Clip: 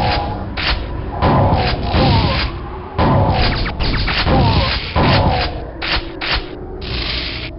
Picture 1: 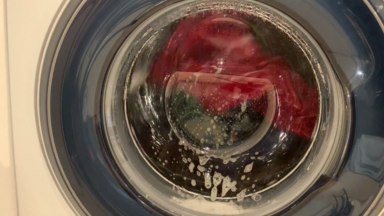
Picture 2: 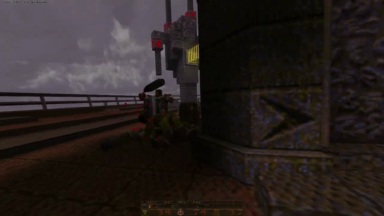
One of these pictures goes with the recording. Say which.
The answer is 2